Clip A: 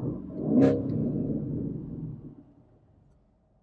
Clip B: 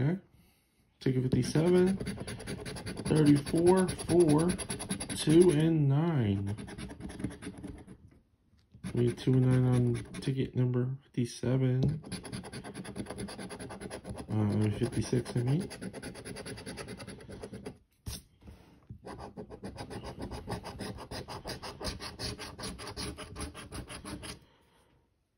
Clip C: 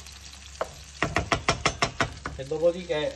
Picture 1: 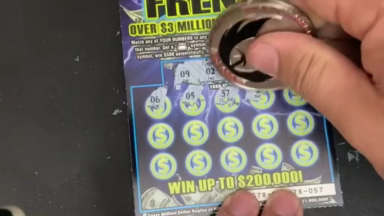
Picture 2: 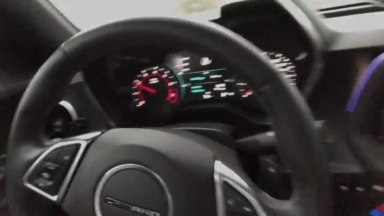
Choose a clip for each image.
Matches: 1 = B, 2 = A